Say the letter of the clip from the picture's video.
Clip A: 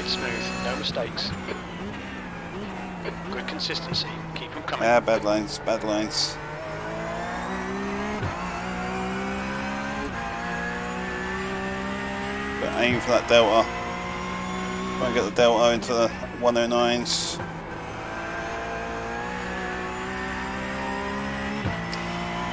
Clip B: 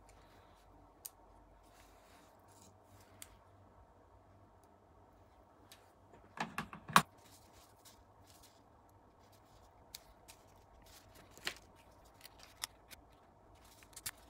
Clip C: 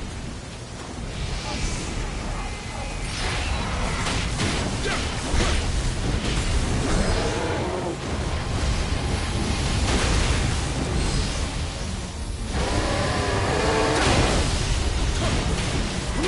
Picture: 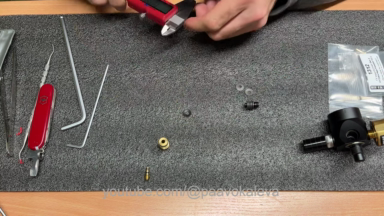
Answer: B